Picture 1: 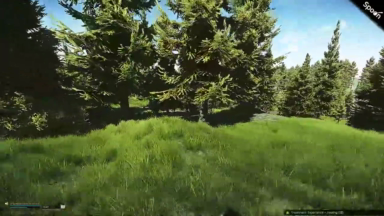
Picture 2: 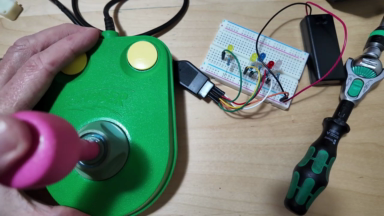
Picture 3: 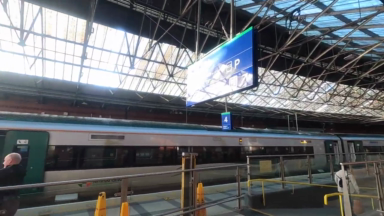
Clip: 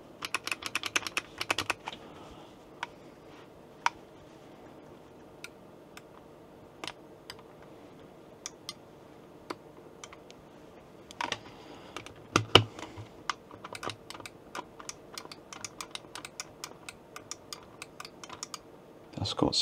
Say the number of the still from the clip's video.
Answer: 2